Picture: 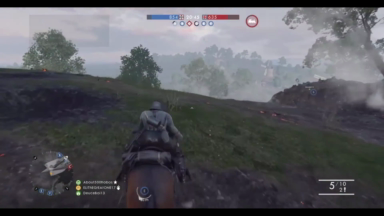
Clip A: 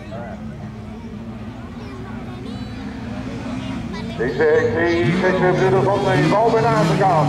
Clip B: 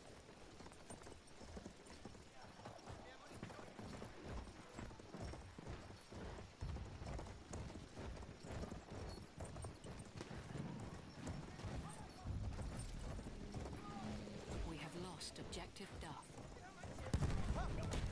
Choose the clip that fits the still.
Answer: B